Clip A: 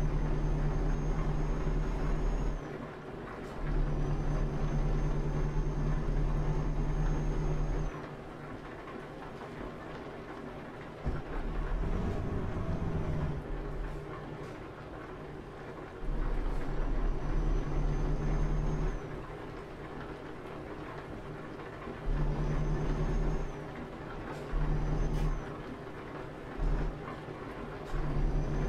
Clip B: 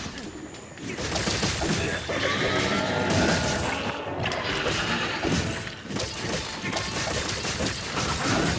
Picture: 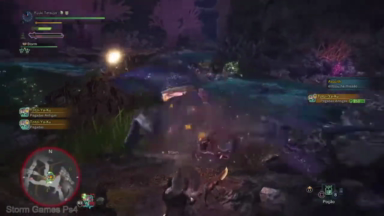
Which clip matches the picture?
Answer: B